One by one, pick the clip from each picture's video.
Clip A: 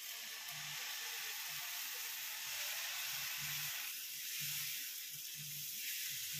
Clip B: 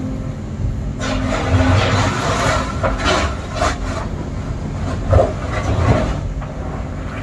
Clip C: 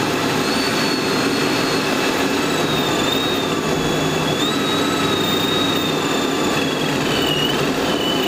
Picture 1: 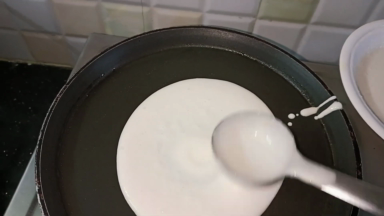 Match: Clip A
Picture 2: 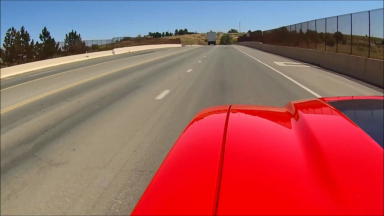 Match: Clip C